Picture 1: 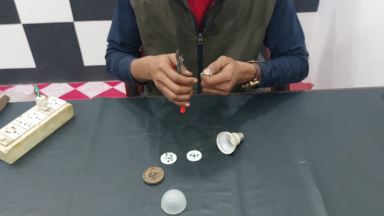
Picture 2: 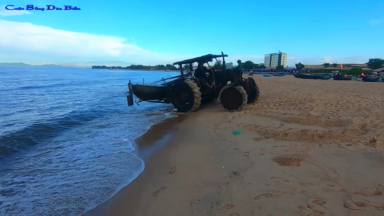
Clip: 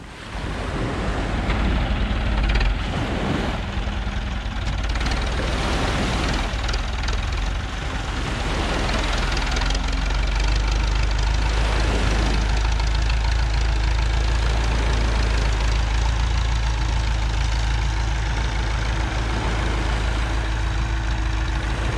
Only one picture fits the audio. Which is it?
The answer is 2